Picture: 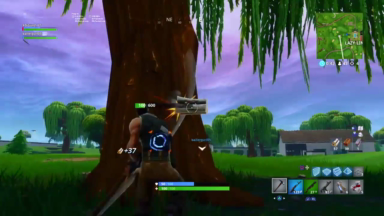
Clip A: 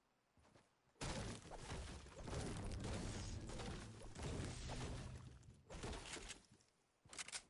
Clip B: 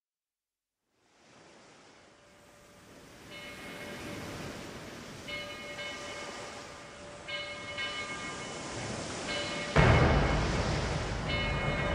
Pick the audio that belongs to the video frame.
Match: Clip A